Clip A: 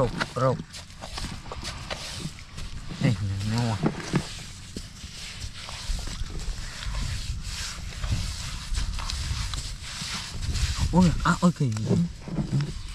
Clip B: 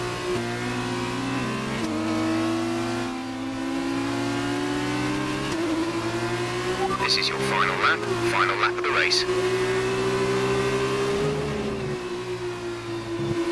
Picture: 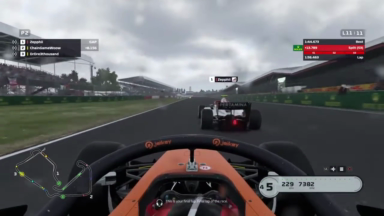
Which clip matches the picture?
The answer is B